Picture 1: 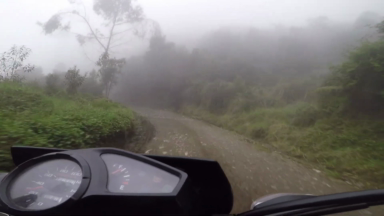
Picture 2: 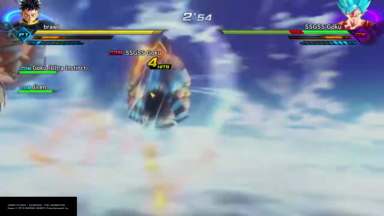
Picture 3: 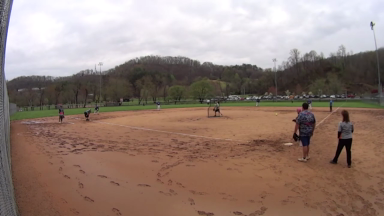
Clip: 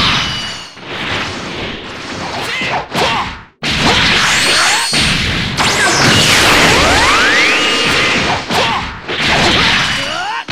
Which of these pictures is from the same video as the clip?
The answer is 2